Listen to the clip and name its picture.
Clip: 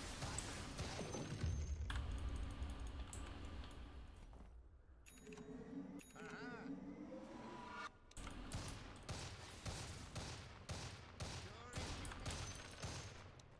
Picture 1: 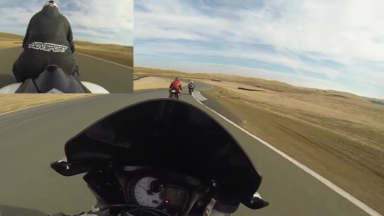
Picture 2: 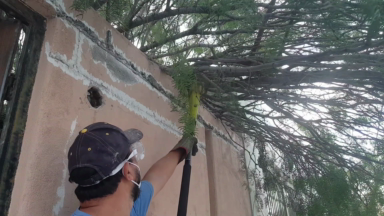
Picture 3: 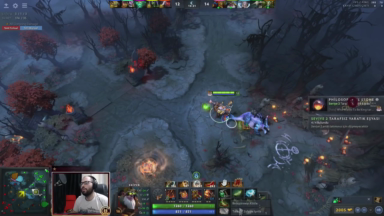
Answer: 3